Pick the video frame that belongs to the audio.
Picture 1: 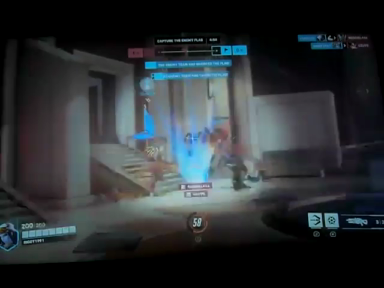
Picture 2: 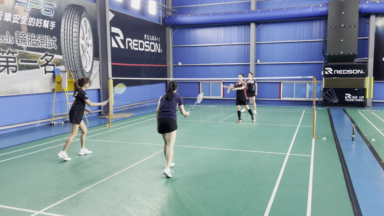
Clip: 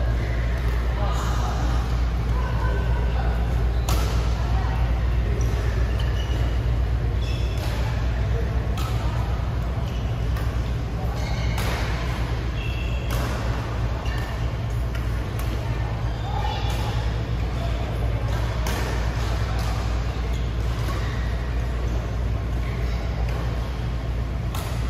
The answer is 2